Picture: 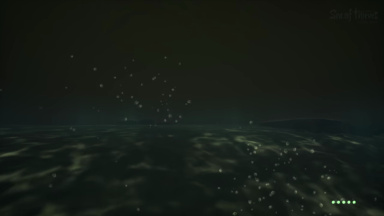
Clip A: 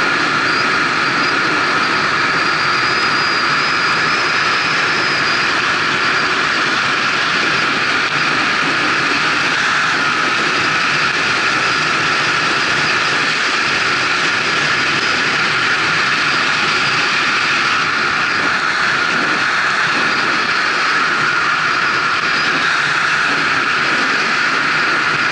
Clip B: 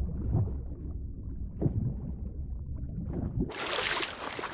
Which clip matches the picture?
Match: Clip B